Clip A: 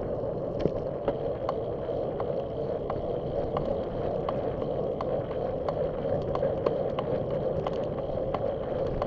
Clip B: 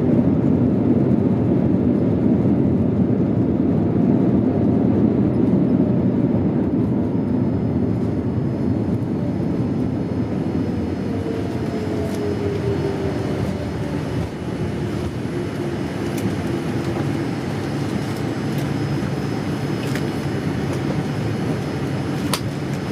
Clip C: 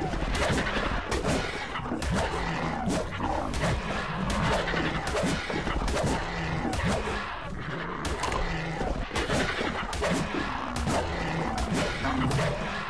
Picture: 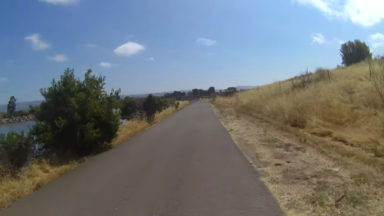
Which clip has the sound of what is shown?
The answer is A